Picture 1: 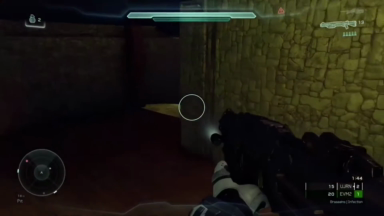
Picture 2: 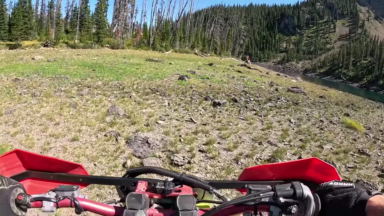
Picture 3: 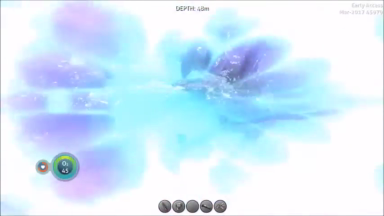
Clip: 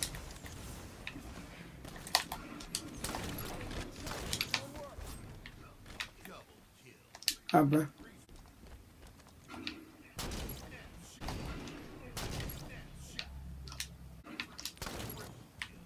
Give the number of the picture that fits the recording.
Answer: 1